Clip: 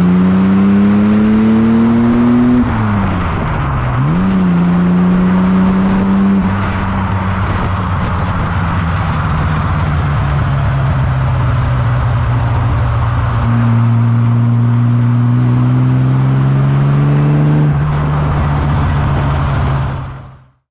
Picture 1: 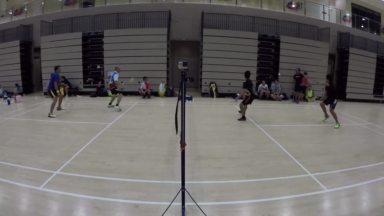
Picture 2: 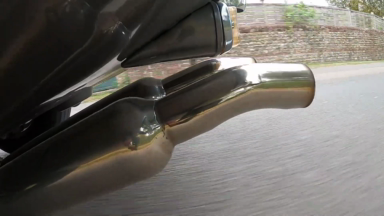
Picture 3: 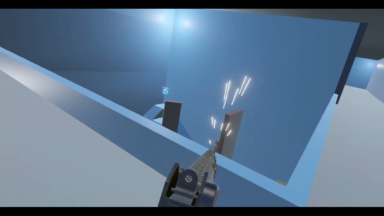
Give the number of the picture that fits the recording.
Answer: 2